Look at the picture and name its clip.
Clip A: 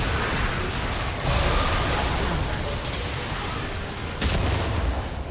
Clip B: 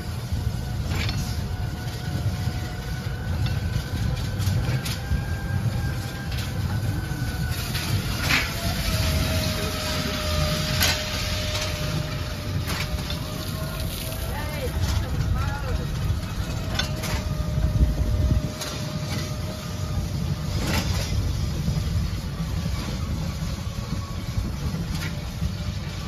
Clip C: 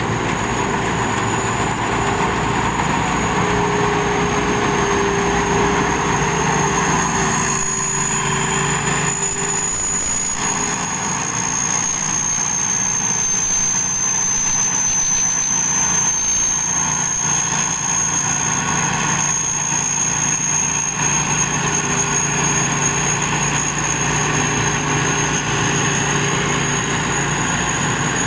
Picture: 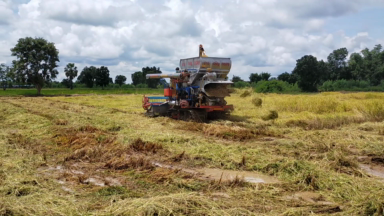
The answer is C